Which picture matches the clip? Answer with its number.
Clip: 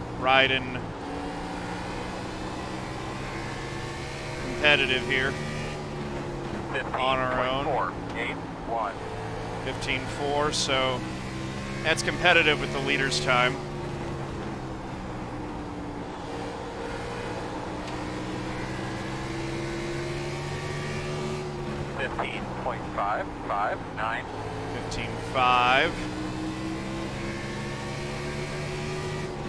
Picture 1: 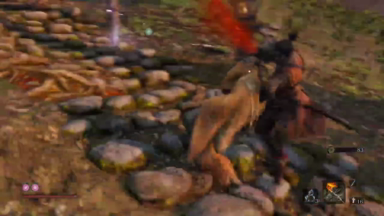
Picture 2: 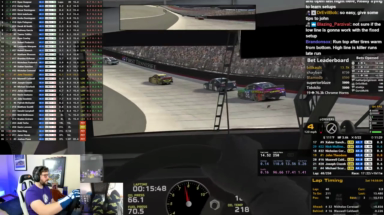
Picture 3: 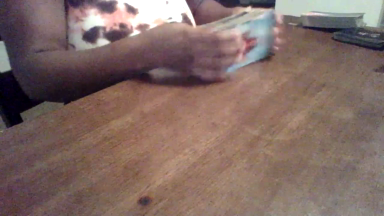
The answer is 2